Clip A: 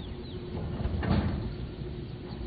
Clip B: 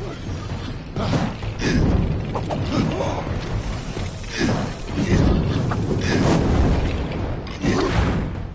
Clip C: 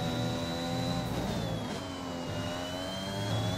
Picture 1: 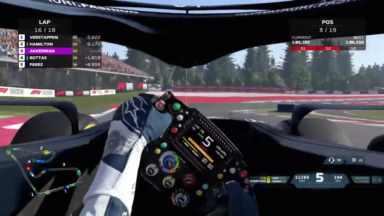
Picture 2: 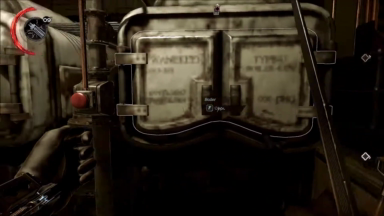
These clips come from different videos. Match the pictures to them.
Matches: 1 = C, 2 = A